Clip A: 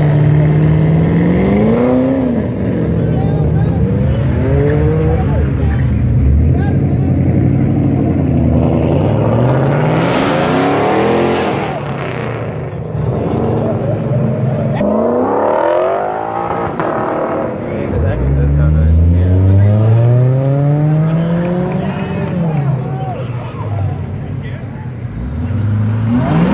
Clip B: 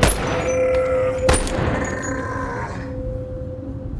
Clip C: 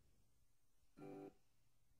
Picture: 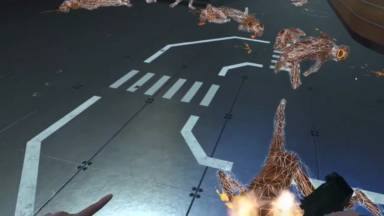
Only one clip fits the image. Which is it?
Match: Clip B